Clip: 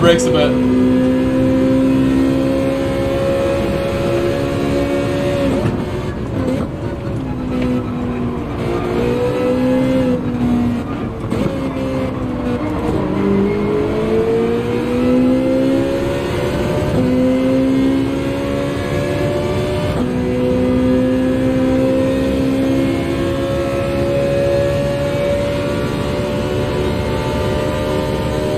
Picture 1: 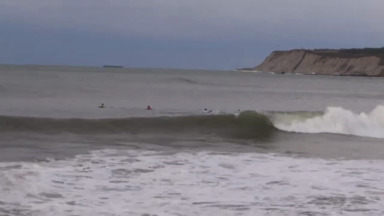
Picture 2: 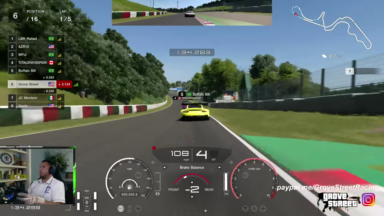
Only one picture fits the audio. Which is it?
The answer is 2